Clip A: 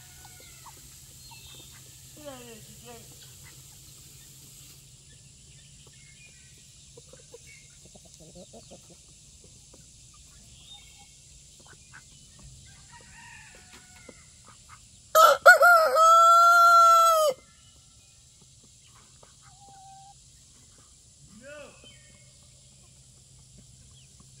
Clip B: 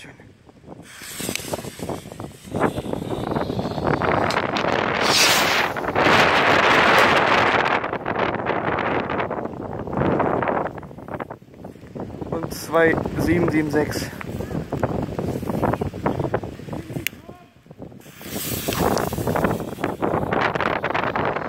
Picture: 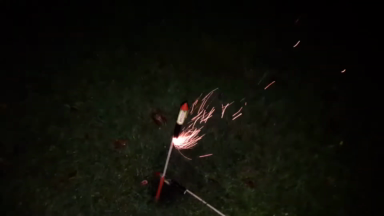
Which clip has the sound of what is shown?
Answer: B